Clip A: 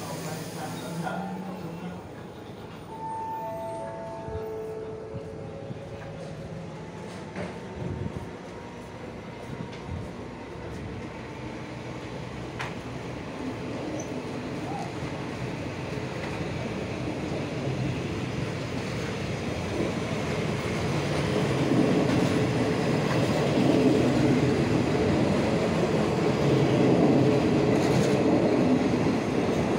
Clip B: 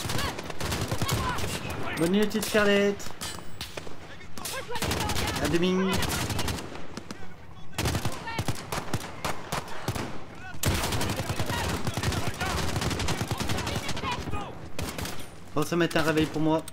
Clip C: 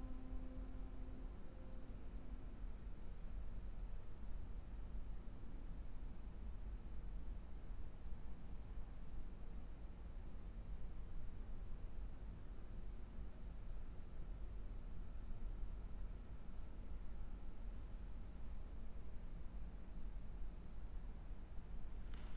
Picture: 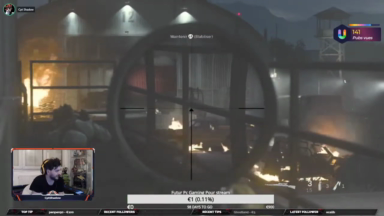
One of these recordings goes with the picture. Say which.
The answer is B